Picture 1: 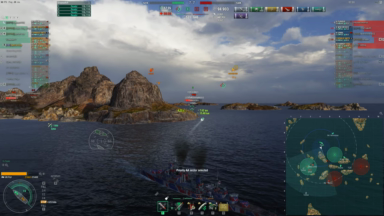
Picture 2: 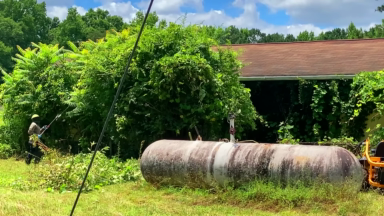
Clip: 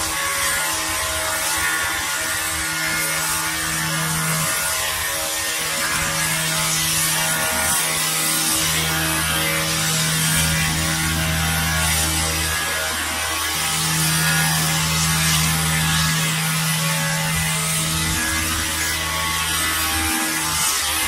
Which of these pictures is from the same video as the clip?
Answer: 2